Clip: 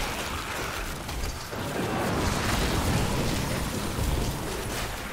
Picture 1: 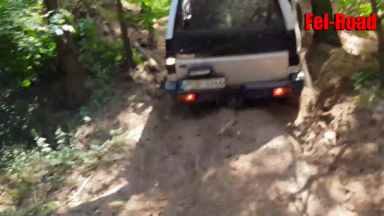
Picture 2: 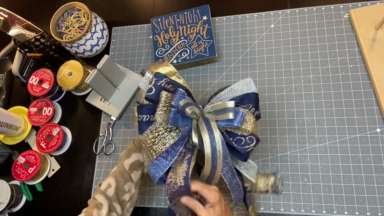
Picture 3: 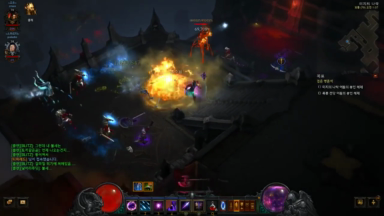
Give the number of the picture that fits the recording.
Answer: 3